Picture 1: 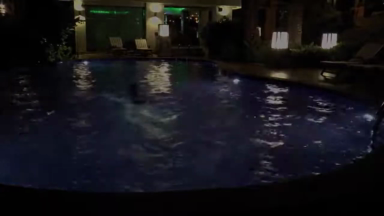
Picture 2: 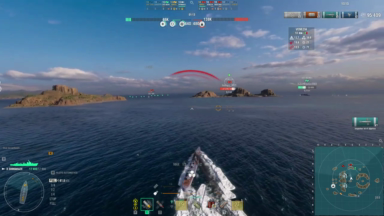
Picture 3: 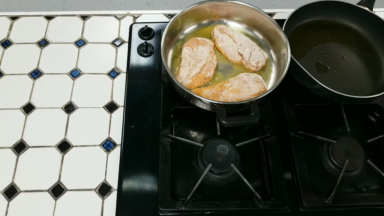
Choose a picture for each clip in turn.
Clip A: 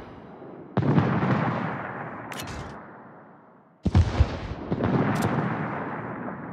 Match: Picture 2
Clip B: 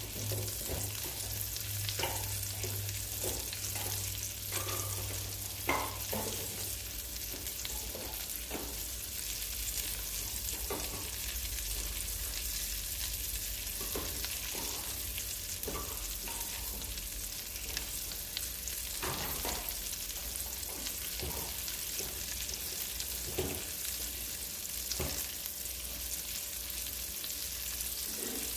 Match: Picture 3